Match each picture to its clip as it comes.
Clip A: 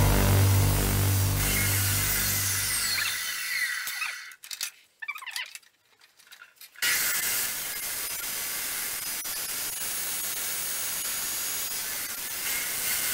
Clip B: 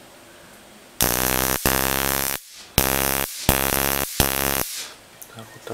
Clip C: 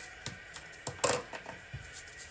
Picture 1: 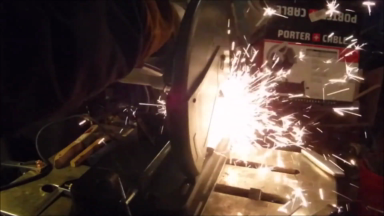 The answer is A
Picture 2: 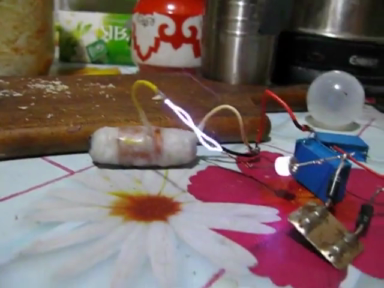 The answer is B